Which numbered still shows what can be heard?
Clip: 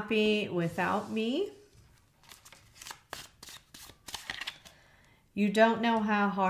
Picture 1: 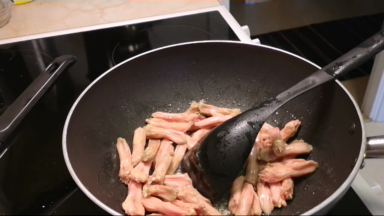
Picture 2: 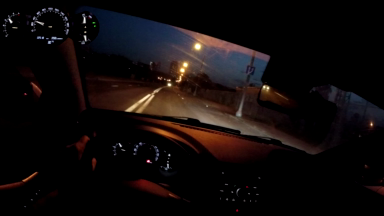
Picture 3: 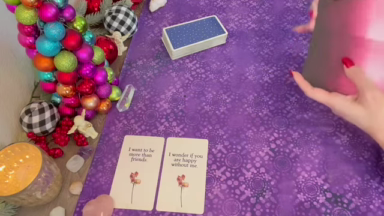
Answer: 3